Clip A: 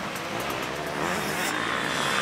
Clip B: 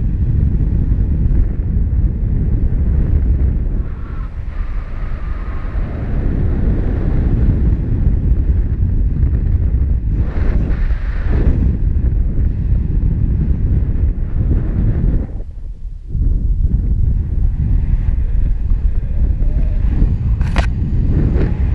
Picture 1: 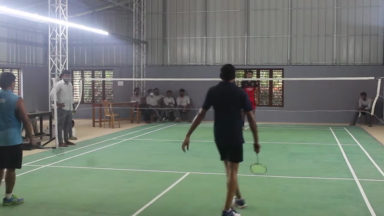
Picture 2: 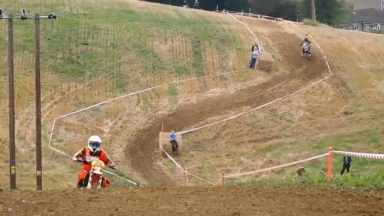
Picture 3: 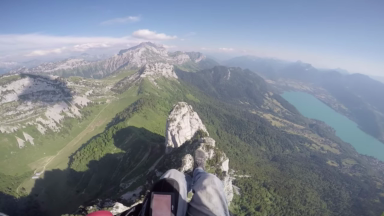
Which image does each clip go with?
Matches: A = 2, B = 3